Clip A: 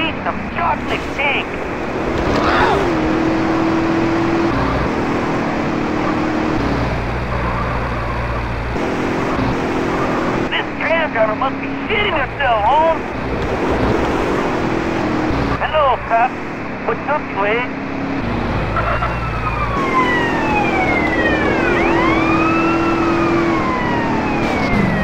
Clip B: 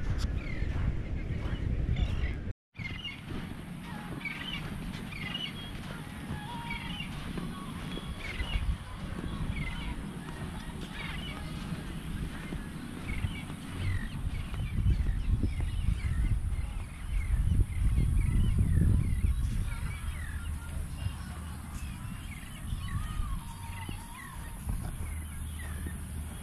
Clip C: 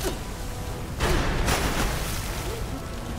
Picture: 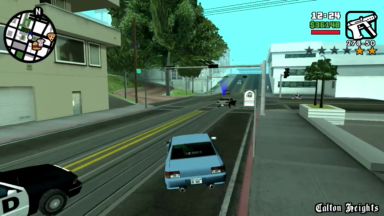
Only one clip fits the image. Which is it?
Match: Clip A